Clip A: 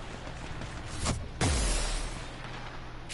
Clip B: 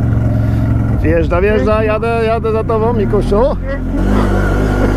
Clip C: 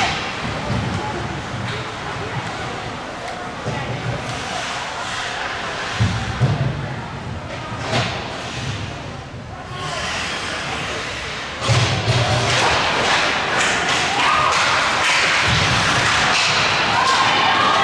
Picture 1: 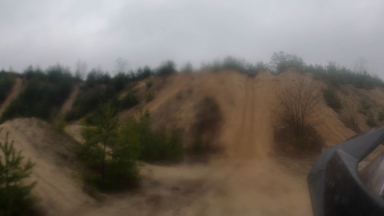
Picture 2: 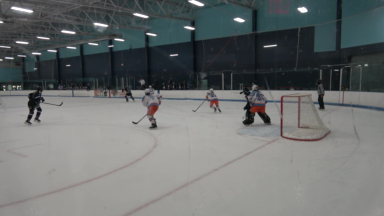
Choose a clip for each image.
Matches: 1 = B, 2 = C